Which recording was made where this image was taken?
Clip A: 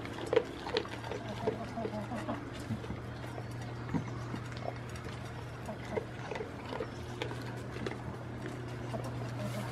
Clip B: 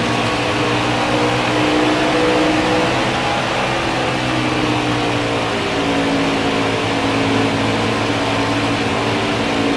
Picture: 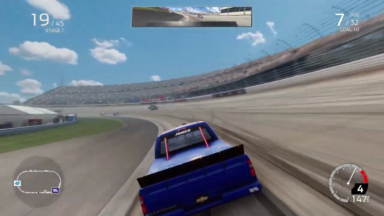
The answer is B